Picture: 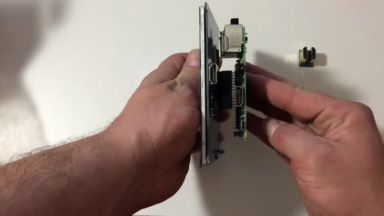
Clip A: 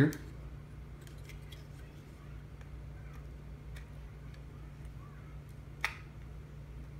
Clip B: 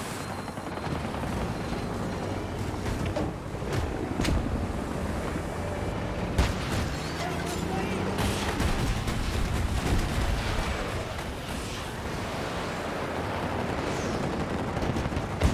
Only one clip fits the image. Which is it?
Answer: A